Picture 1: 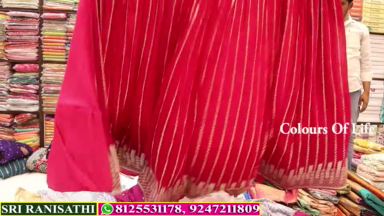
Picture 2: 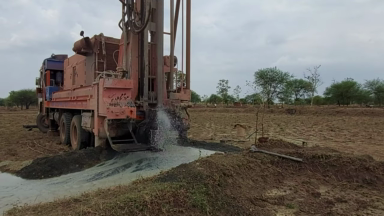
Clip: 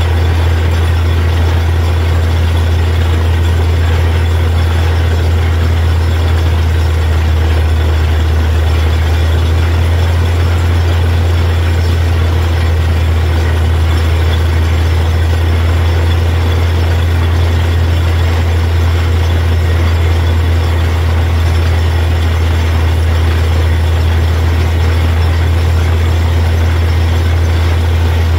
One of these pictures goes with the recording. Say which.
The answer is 2